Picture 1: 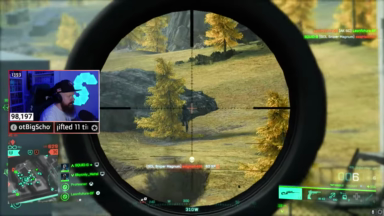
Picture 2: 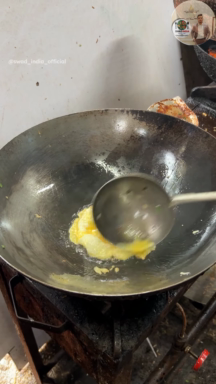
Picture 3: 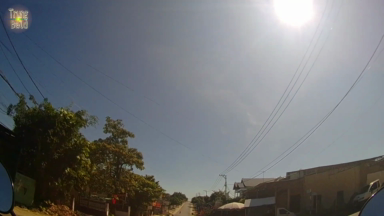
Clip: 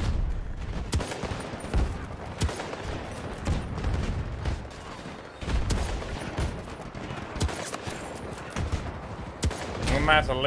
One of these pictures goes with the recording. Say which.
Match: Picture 1